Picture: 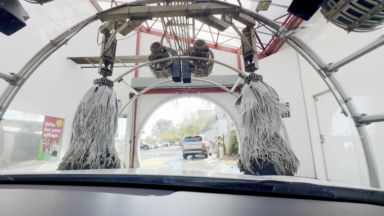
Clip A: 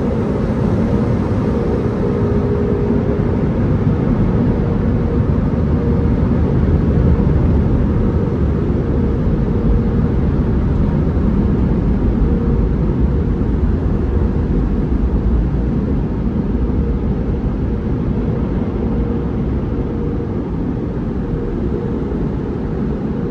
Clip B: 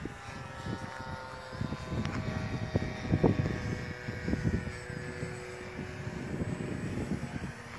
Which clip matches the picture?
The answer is A